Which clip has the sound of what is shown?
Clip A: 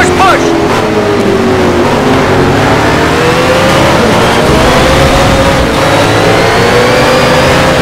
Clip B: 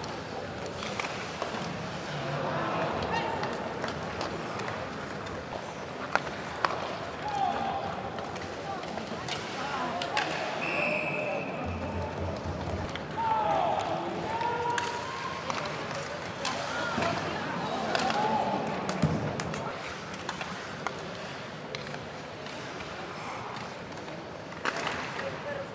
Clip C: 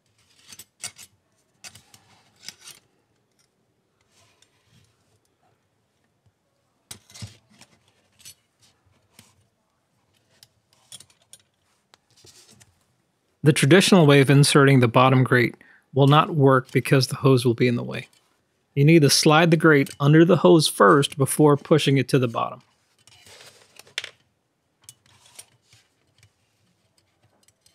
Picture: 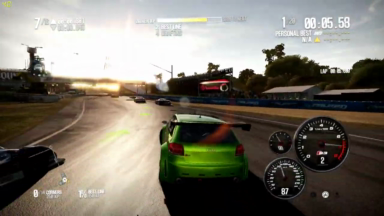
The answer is A